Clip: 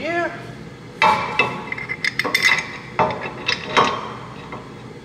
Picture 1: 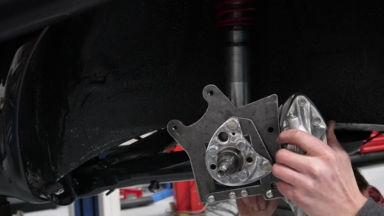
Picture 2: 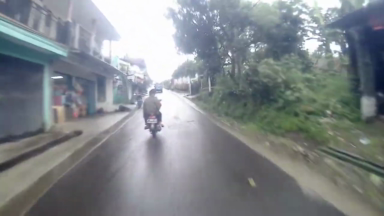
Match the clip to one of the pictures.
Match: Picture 1